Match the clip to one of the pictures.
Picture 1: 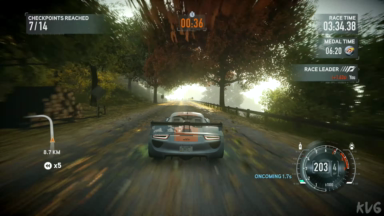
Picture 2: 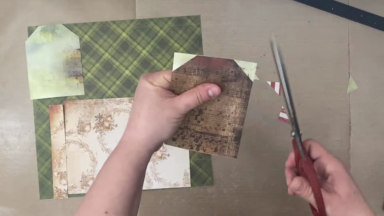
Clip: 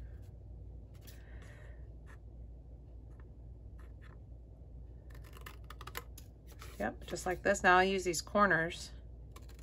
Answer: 2